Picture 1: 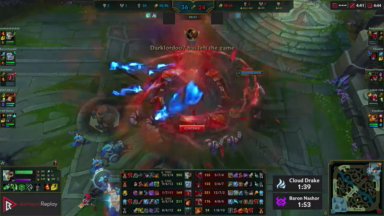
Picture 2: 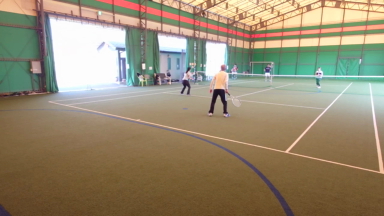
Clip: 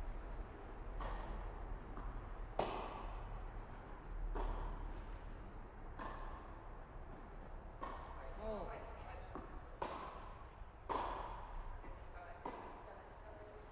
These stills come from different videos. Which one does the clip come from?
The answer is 2